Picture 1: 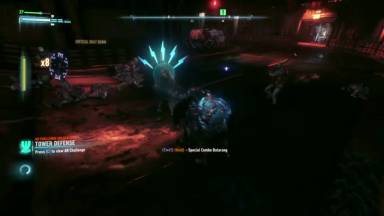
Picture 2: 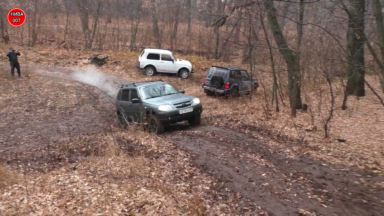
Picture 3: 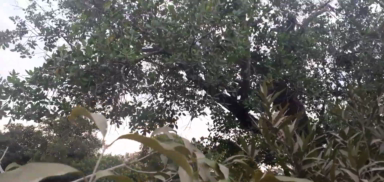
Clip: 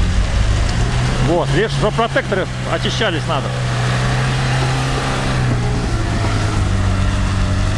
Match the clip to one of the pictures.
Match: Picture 2